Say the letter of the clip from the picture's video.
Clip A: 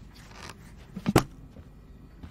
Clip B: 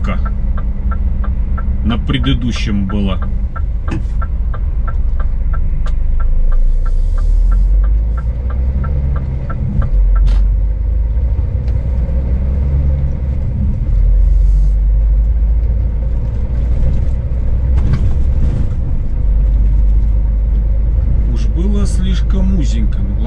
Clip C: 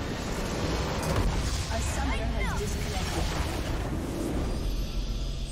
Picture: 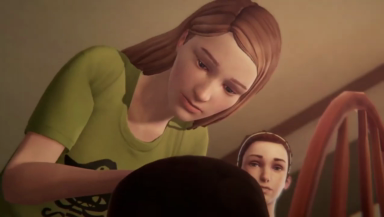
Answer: A